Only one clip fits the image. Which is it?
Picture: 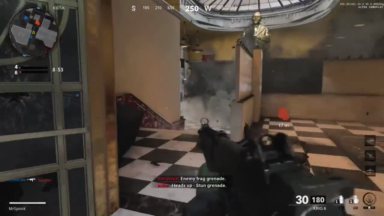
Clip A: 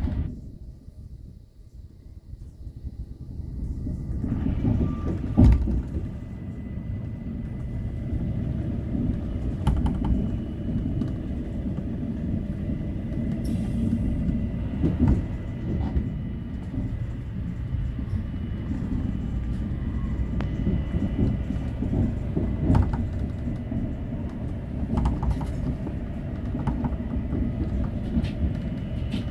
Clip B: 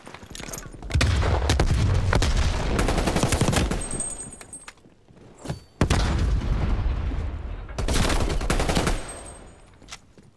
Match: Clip B